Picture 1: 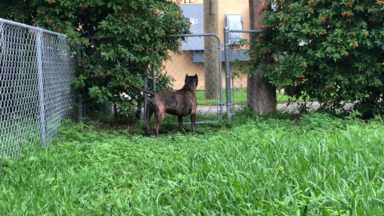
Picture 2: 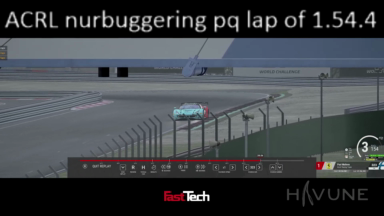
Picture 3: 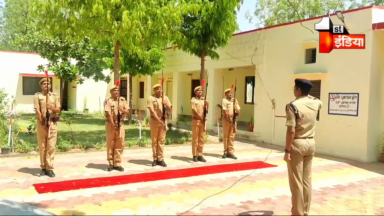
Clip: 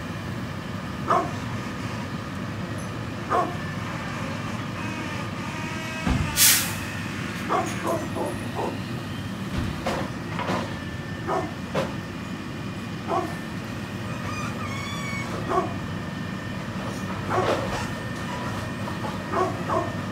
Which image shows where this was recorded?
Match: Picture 1